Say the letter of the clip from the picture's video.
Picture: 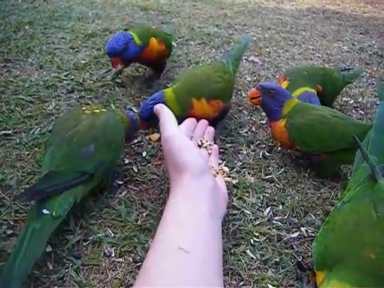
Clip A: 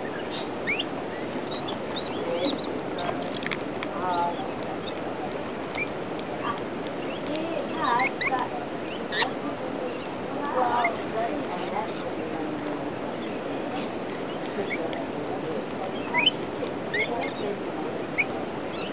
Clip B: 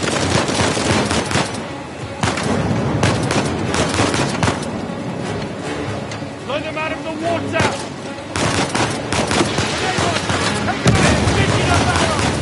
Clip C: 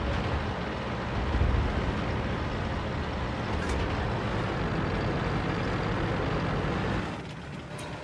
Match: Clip A